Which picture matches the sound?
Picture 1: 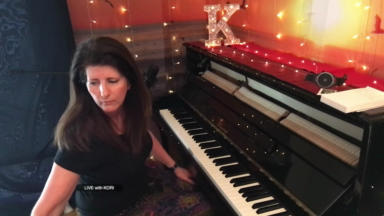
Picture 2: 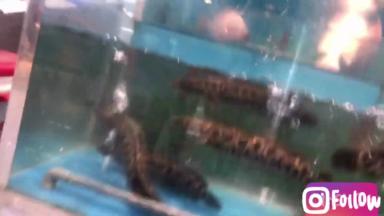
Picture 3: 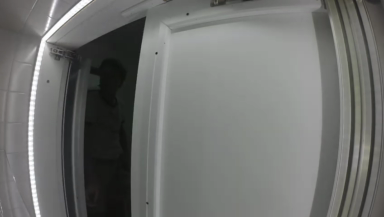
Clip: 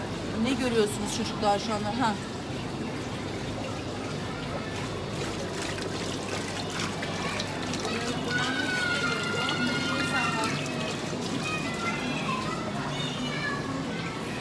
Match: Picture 2